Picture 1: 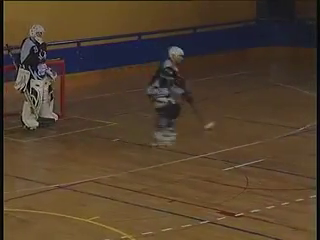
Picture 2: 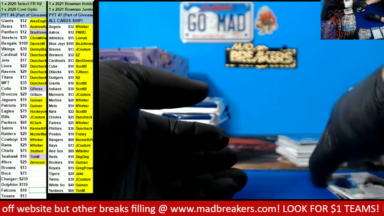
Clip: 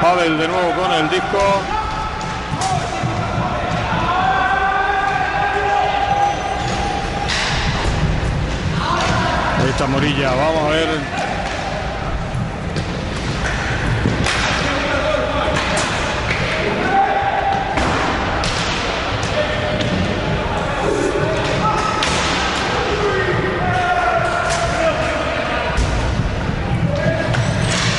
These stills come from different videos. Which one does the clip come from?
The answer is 1